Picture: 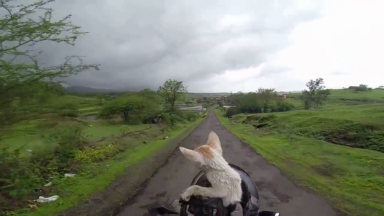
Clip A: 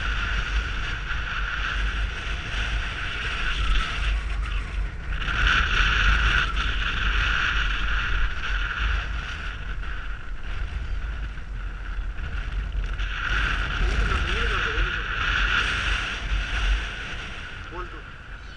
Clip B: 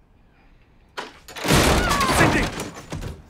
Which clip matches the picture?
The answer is A